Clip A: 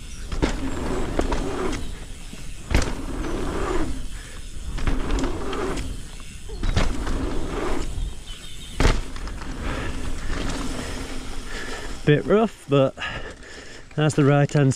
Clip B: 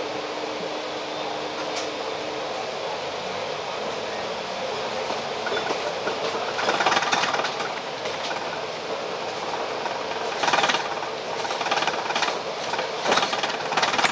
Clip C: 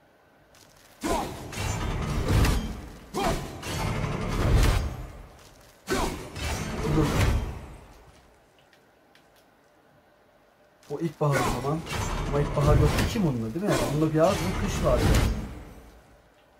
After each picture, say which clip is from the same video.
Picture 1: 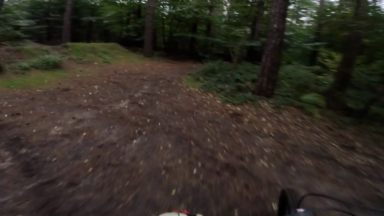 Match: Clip A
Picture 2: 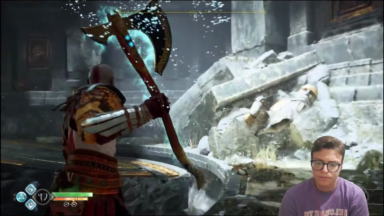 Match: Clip C